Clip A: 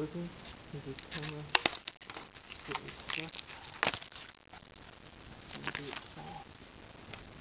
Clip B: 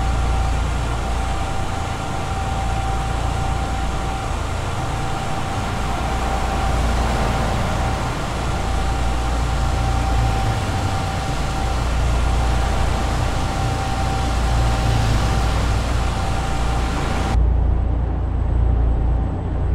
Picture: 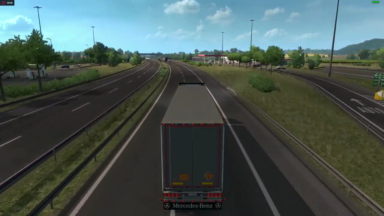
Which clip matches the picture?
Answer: B